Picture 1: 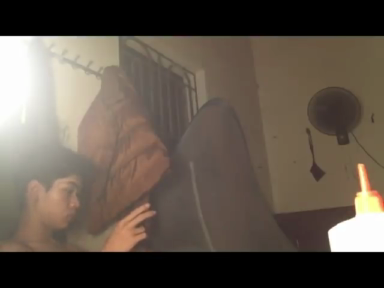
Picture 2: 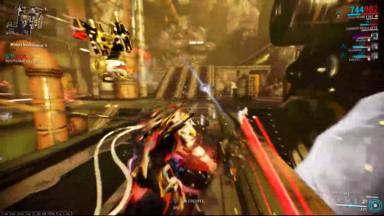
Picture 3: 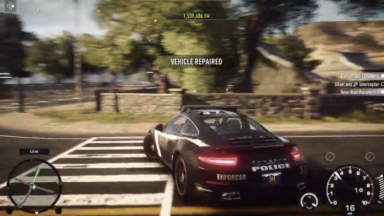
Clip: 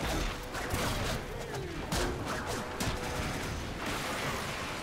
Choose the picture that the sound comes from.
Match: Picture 2